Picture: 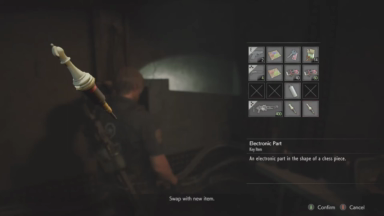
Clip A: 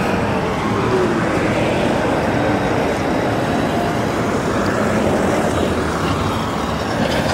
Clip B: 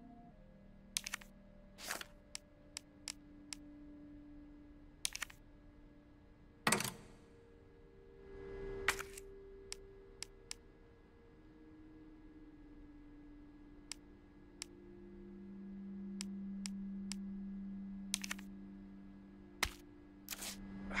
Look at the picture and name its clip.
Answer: B